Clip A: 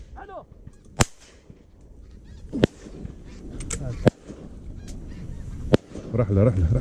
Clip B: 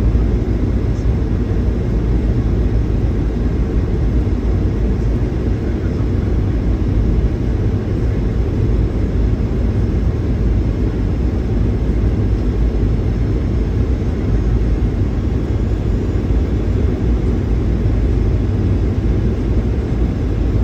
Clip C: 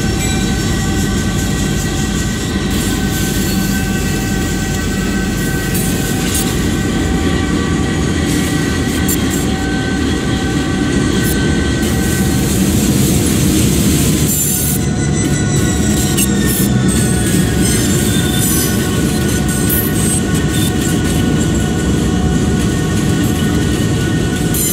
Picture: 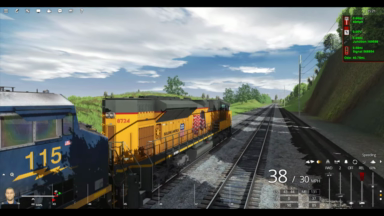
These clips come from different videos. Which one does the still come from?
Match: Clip C